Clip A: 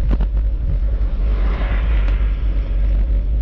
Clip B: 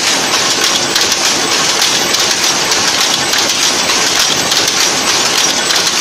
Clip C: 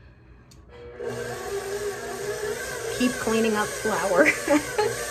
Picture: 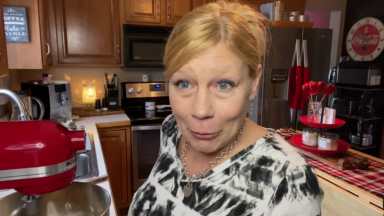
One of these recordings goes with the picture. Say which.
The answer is C